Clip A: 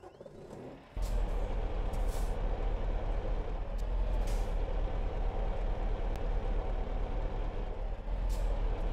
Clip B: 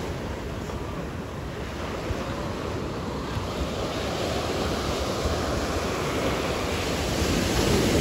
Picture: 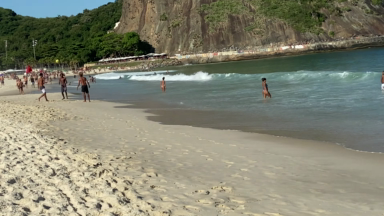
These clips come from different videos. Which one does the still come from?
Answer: B